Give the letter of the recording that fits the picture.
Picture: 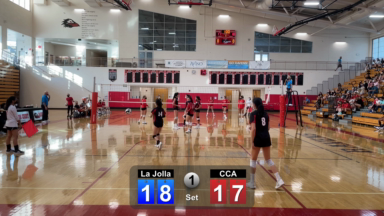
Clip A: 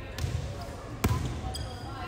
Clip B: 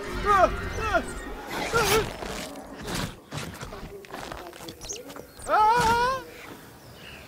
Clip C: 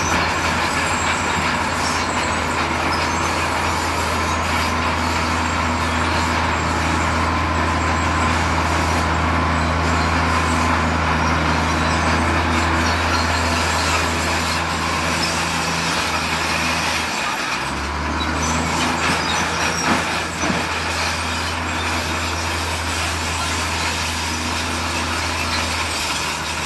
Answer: A